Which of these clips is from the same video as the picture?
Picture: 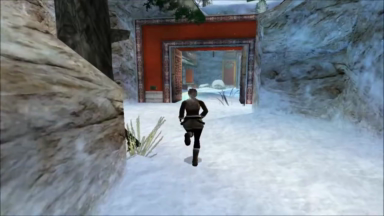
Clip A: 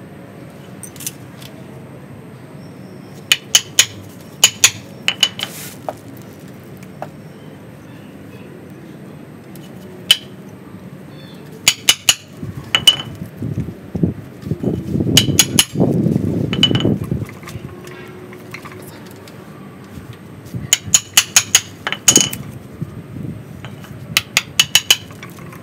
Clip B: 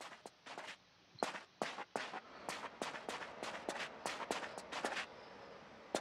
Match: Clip B